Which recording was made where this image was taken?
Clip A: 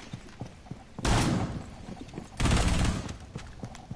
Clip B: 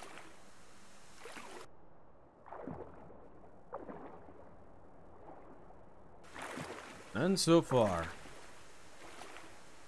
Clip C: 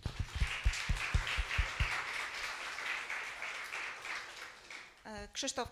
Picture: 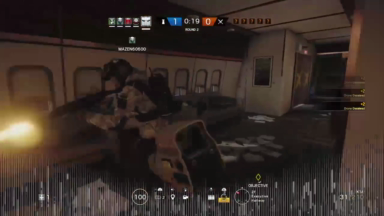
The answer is A